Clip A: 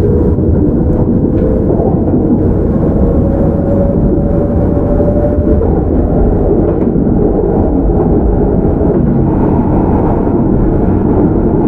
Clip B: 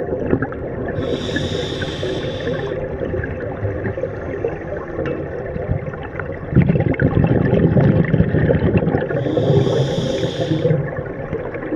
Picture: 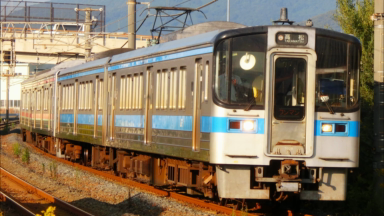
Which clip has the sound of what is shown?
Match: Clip A